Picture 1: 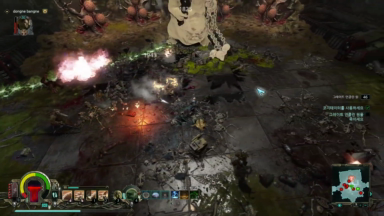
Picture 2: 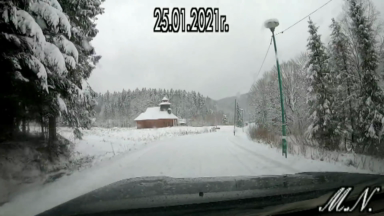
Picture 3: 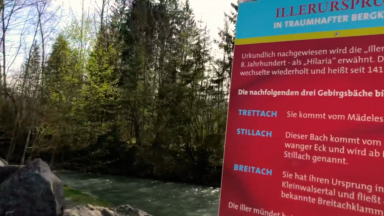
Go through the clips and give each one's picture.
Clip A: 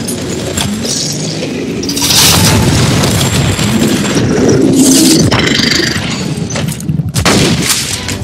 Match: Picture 1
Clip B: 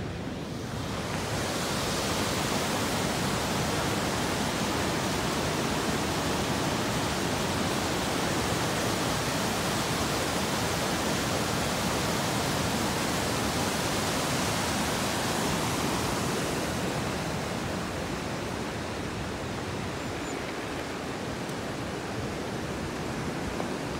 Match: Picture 3